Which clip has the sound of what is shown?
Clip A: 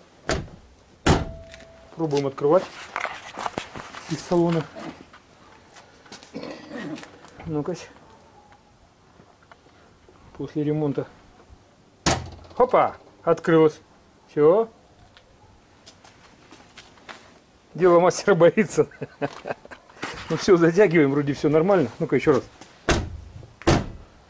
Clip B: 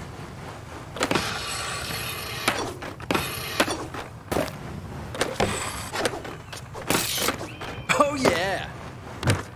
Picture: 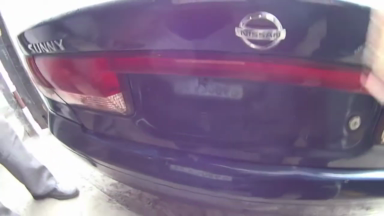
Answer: A